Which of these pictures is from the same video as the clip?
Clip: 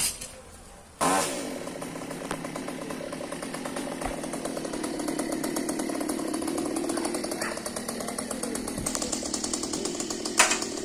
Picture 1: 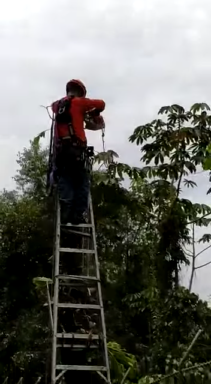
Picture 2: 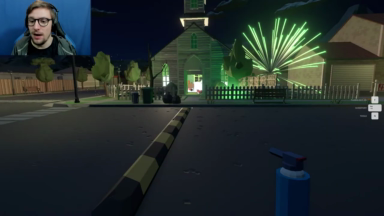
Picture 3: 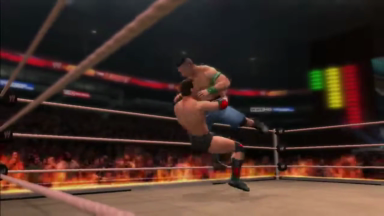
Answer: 1